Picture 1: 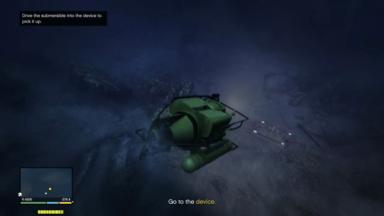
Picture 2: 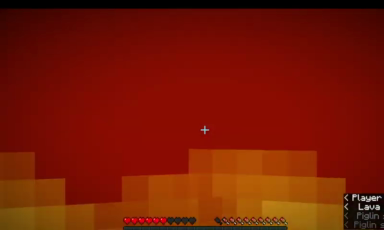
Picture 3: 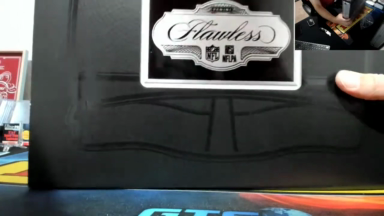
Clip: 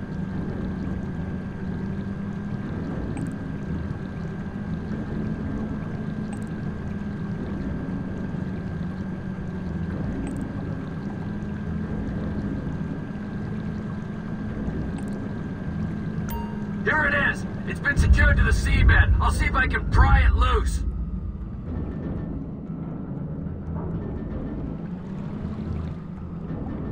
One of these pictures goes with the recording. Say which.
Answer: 1